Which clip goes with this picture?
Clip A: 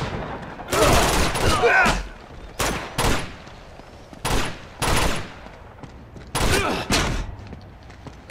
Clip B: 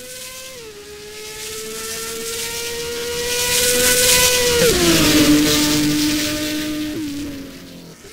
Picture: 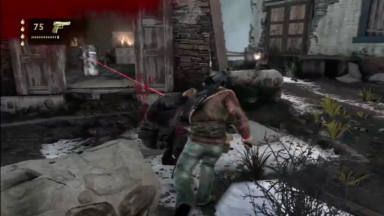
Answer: A